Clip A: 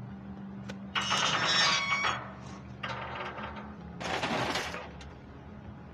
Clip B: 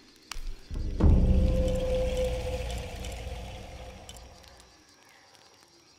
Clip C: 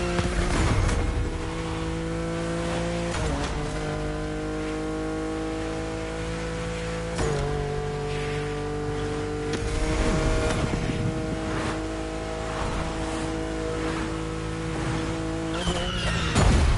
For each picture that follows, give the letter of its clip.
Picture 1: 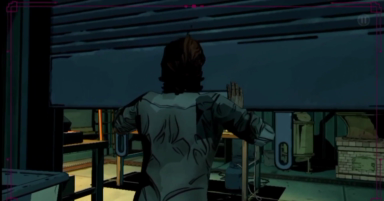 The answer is A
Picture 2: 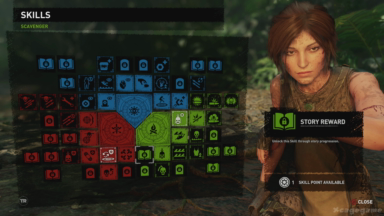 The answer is B